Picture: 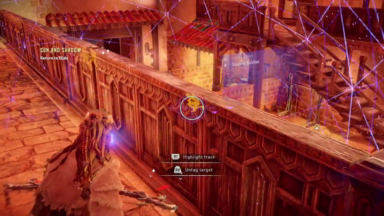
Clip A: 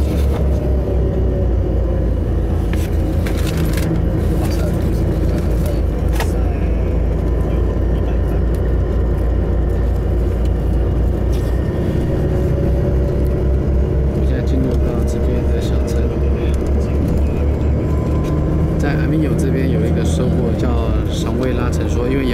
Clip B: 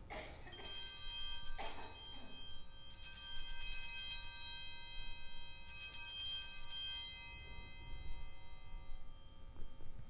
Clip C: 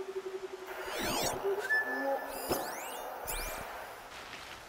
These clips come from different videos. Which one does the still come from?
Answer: C